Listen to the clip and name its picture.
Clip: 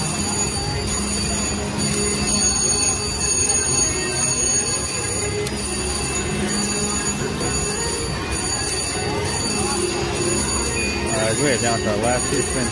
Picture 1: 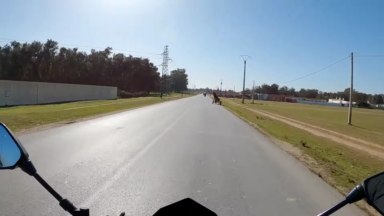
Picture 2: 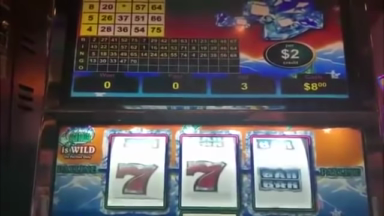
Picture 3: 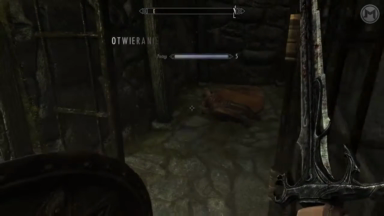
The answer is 2